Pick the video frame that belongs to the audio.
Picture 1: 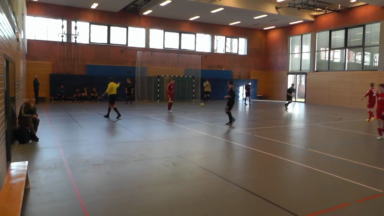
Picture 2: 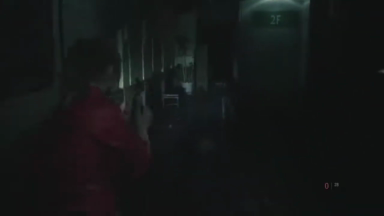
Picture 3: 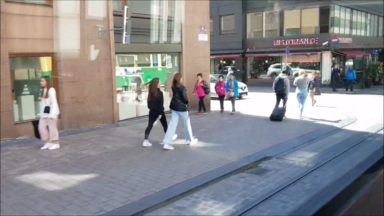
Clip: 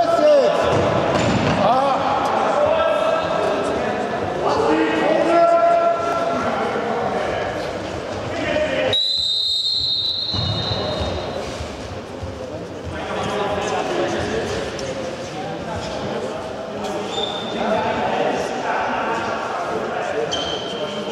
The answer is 1